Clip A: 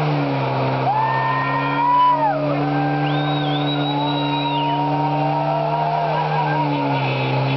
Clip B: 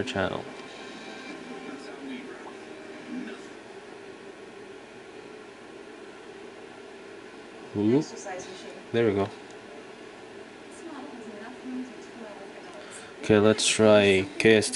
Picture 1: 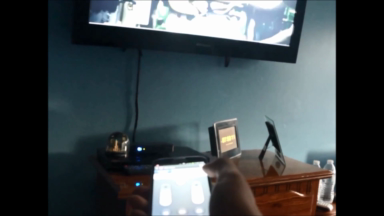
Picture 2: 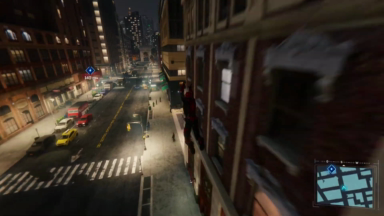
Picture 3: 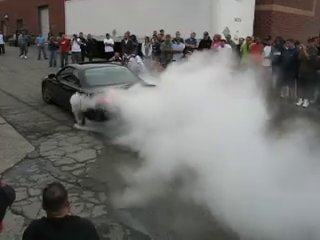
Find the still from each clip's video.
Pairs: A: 3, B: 1